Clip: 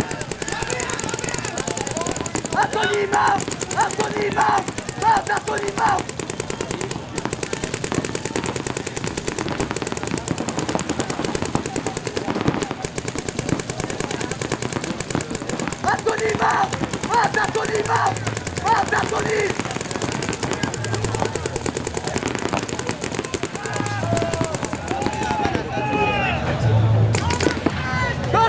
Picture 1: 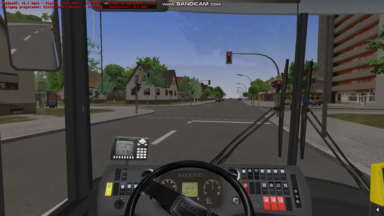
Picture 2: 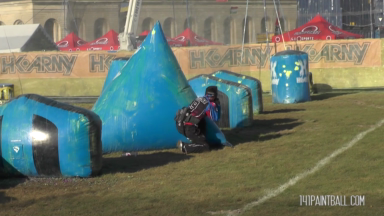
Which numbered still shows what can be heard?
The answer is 2